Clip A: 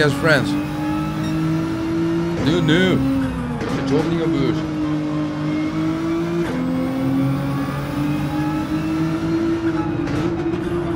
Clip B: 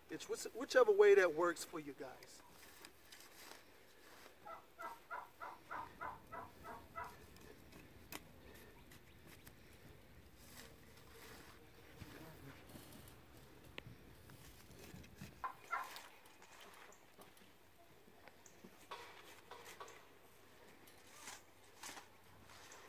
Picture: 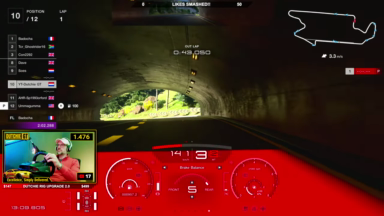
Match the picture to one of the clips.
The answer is A